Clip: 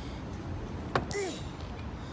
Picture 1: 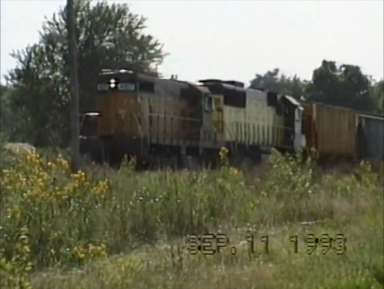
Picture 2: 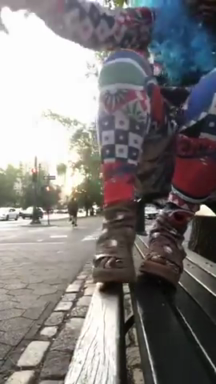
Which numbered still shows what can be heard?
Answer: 2